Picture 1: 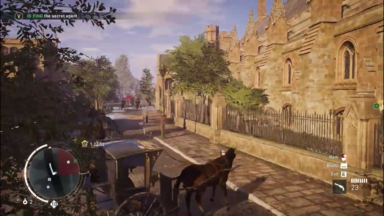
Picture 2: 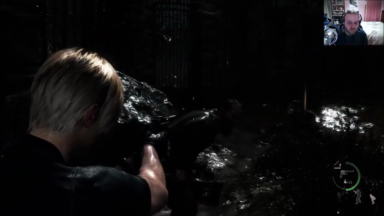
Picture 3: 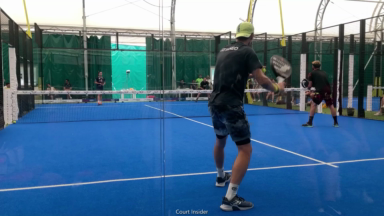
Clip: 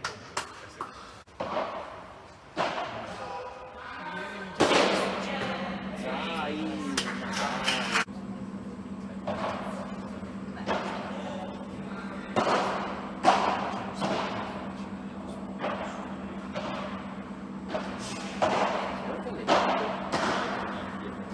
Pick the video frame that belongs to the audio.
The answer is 3